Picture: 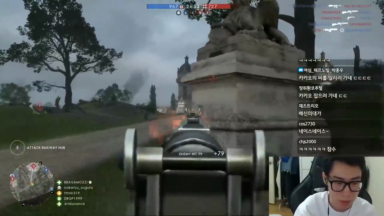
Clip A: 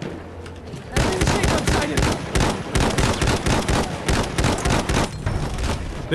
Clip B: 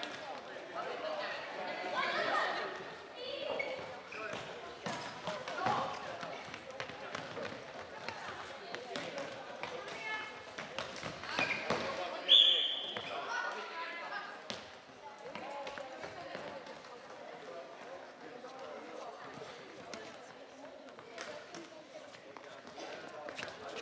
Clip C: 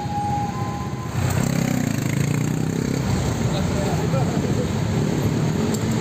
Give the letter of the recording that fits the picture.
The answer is A